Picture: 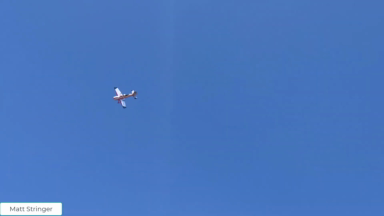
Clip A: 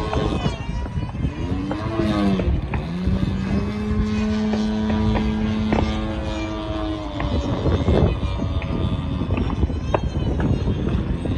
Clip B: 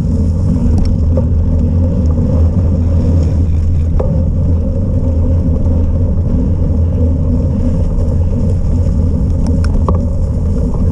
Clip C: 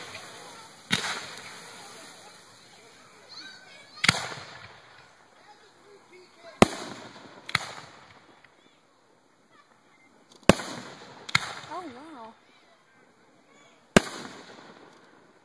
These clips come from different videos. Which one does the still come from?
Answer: A